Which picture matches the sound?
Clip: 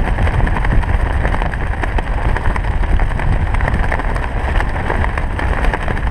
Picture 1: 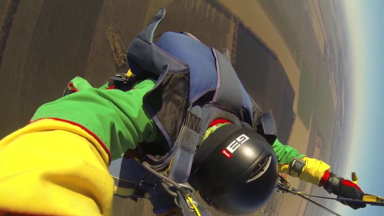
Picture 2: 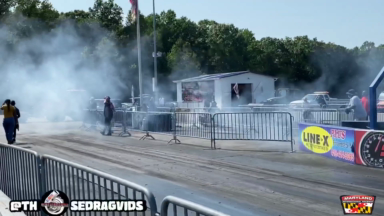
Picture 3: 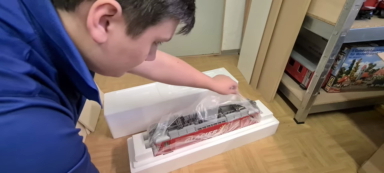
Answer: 1